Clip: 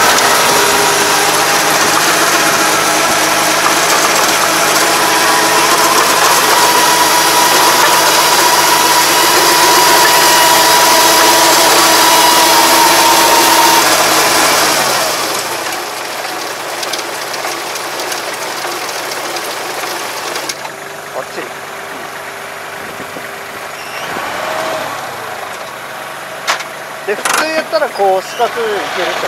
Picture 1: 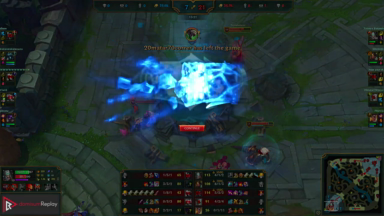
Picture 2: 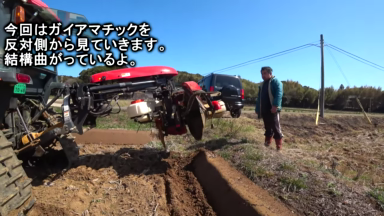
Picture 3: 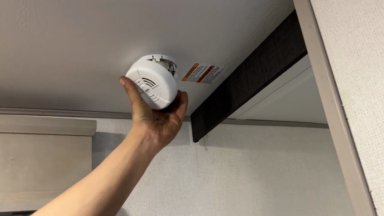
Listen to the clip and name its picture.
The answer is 2